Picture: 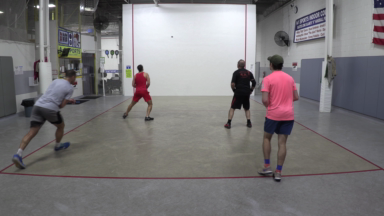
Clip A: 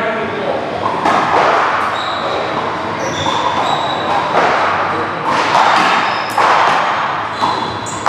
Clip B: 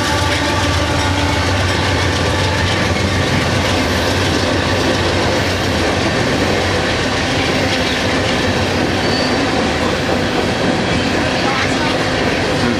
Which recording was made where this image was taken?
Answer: A